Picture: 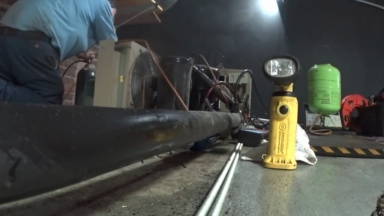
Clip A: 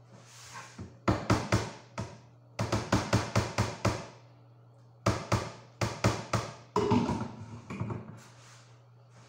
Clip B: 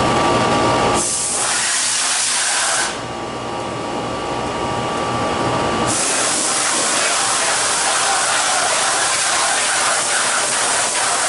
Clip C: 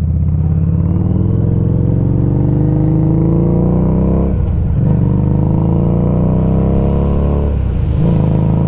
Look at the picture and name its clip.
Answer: B